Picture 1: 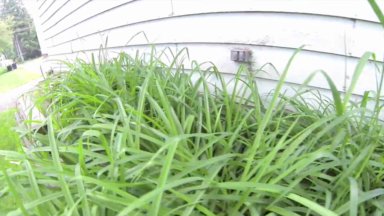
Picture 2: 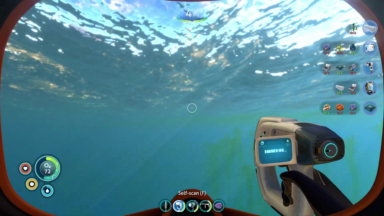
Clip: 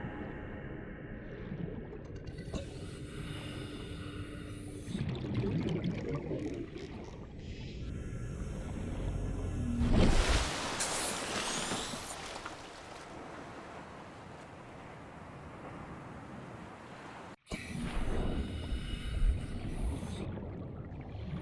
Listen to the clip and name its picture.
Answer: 2